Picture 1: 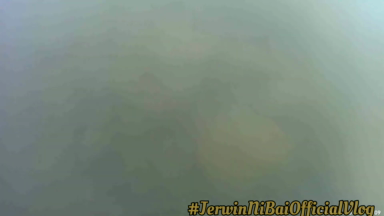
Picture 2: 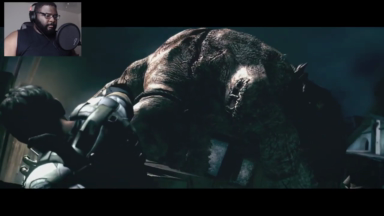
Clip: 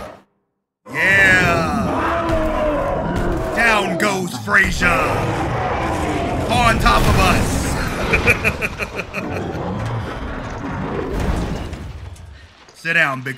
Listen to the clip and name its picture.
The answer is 2